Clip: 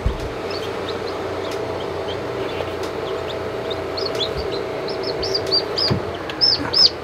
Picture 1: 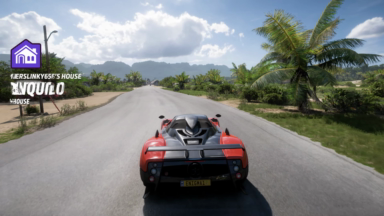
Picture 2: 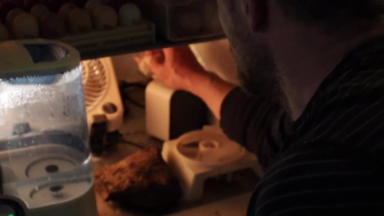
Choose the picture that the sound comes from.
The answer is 2